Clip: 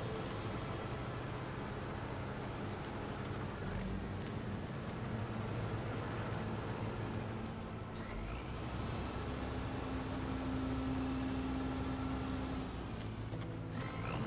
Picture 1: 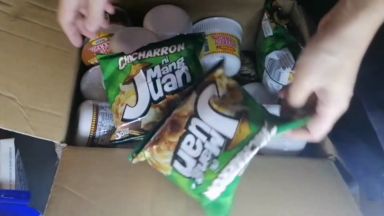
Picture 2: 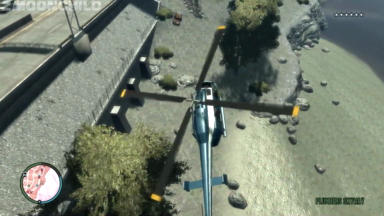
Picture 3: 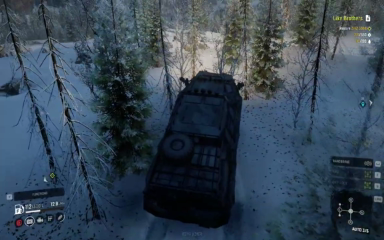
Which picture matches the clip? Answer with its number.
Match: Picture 3